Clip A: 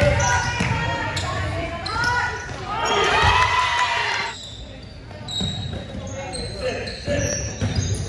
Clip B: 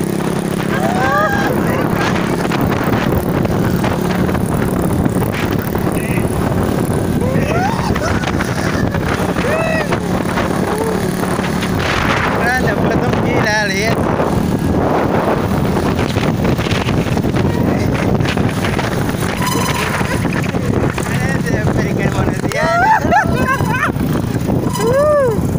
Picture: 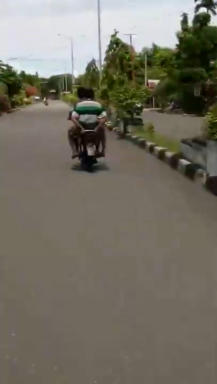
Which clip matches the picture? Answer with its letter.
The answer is B